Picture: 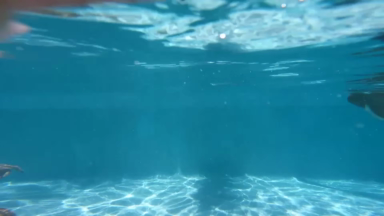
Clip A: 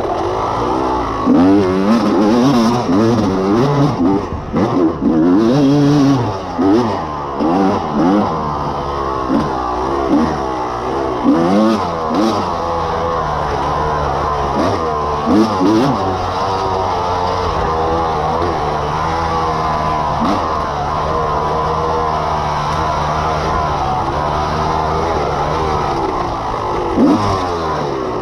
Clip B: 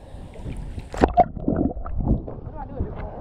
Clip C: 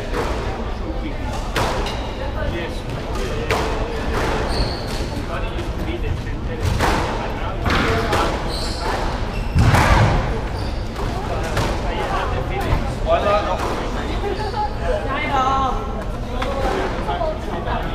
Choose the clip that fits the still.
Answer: B